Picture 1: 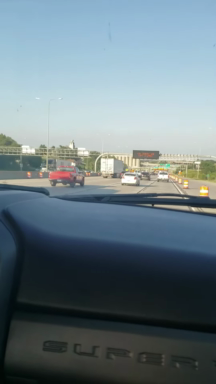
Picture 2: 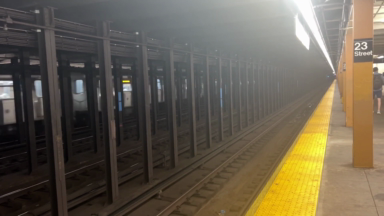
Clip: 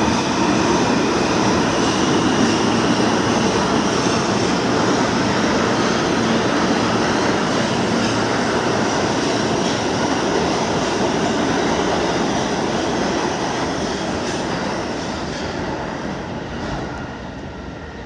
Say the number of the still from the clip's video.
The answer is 2